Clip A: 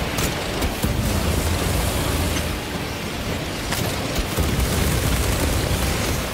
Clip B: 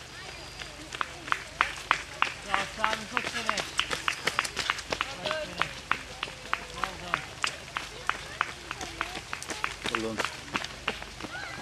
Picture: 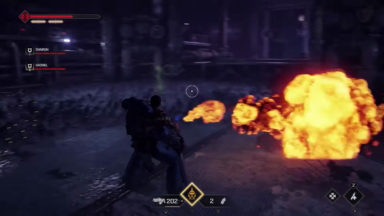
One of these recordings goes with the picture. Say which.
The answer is A